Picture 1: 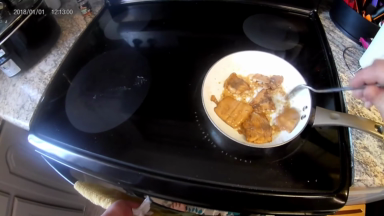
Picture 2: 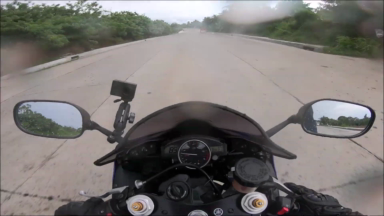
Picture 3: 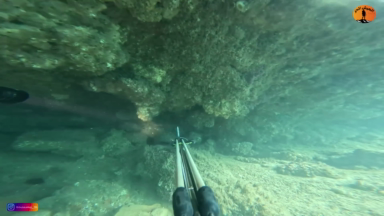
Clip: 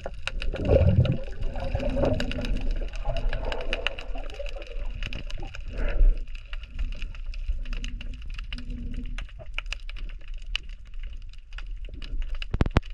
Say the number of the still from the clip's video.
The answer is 3